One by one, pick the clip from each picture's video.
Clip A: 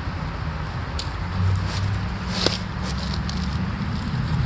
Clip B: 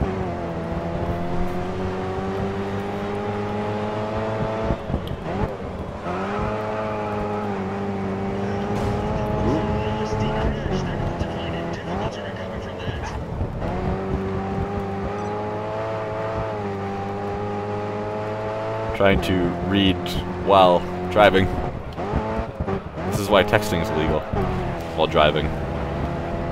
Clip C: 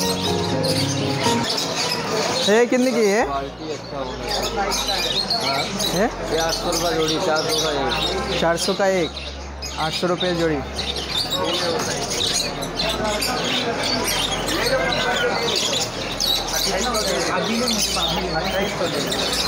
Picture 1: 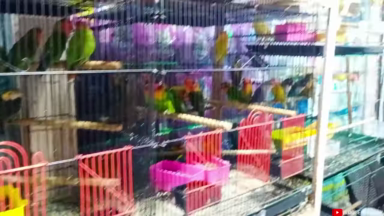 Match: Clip C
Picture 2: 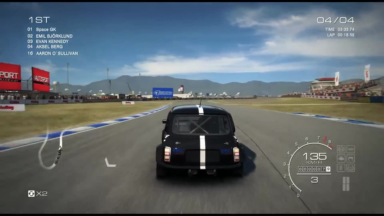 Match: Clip B